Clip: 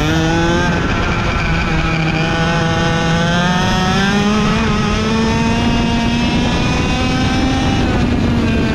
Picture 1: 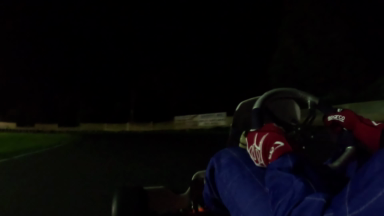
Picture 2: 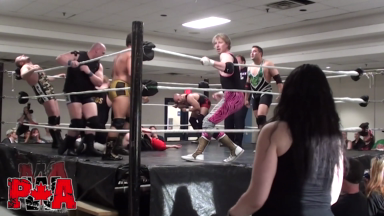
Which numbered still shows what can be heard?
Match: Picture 1